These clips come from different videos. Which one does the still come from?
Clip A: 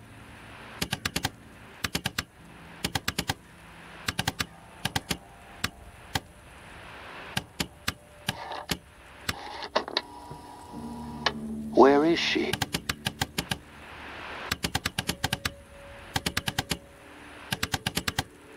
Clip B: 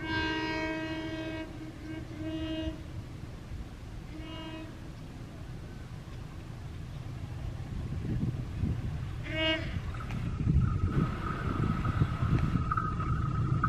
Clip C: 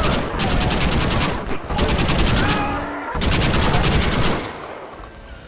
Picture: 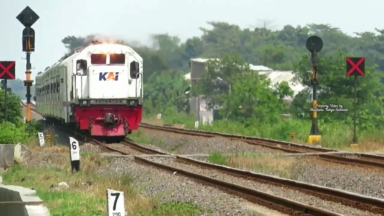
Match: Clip B